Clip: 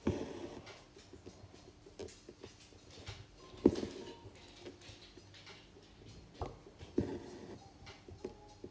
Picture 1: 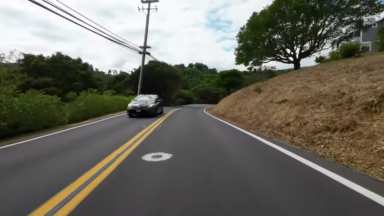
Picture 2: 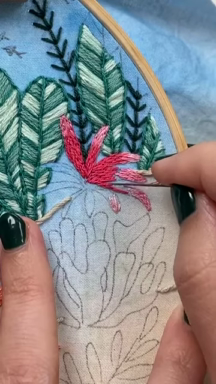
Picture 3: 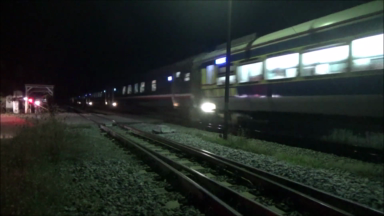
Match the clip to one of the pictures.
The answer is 2